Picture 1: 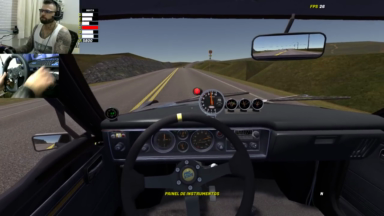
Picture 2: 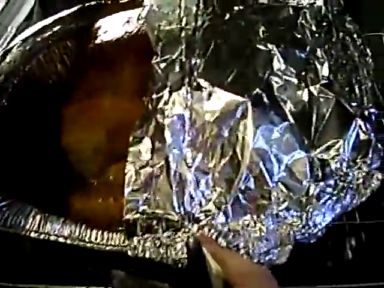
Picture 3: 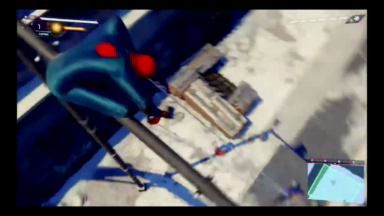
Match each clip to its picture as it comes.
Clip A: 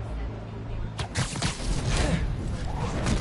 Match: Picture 3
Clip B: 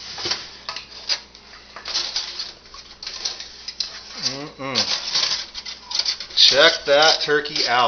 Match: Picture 2